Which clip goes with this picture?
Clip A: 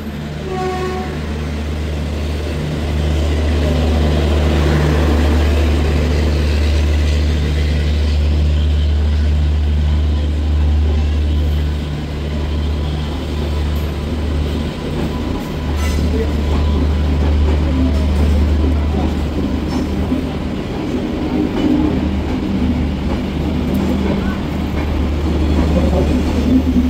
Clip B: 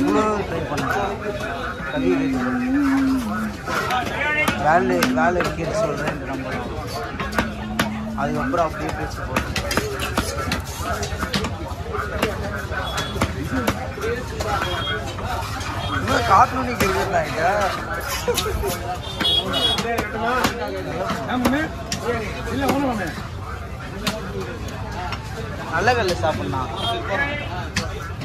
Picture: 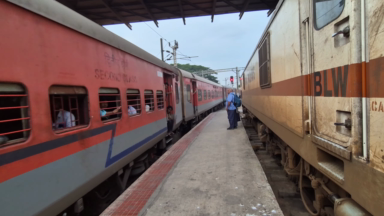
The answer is A